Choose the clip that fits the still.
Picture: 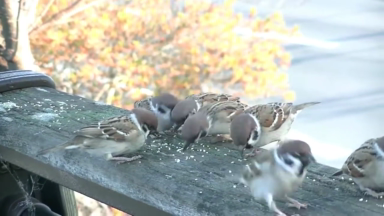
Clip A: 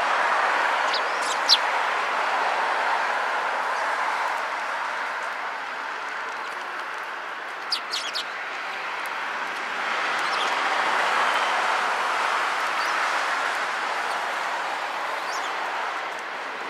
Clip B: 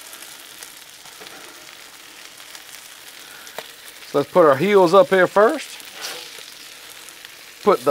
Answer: A